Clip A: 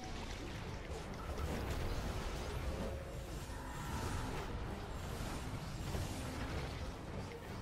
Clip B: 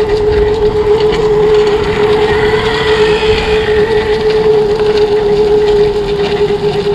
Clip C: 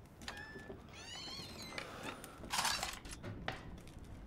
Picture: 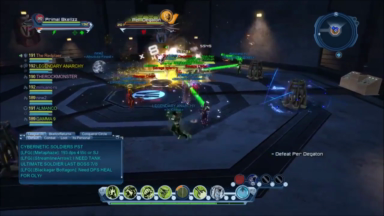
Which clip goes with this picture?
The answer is A